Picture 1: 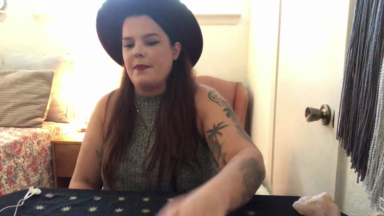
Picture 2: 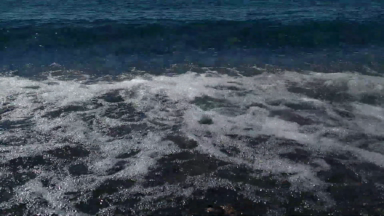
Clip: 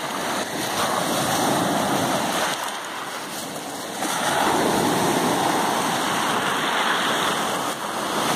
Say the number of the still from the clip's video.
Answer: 2